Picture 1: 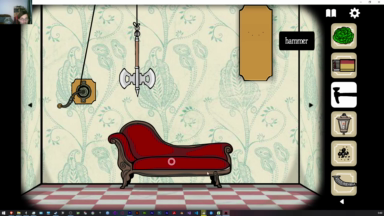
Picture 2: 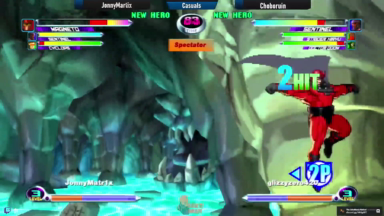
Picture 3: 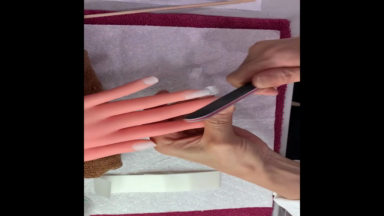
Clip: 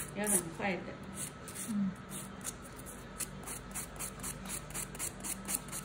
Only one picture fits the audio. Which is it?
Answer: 3